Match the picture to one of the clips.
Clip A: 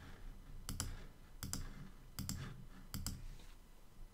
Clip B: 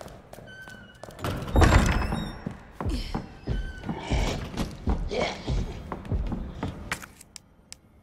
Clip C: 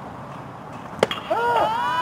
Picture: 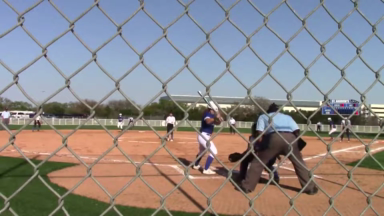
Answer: C